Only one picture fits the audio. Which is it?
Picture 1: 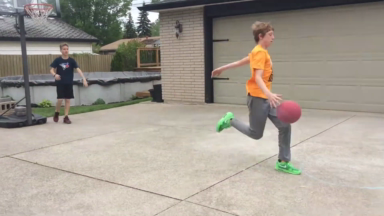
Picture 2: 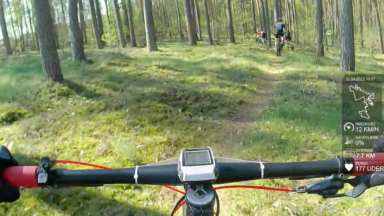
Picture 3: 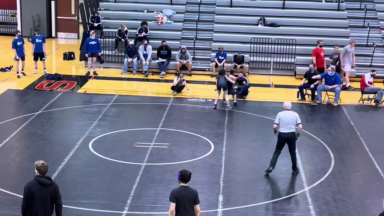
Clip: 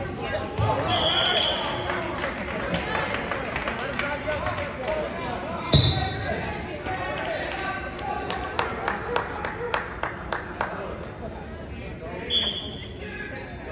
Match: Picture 3